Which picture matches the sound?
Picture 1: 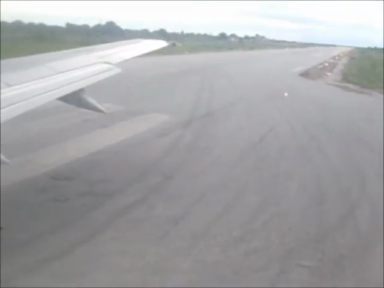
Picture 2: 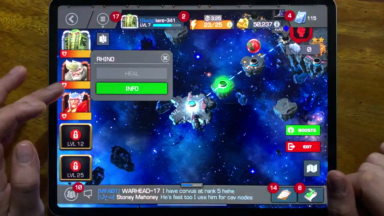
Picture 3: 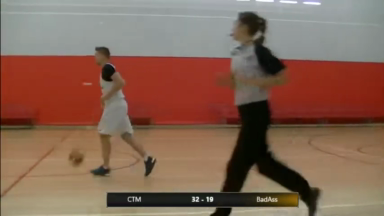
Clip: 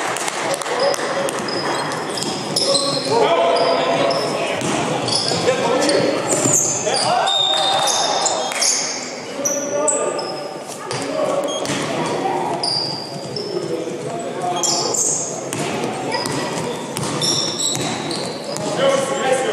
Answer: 3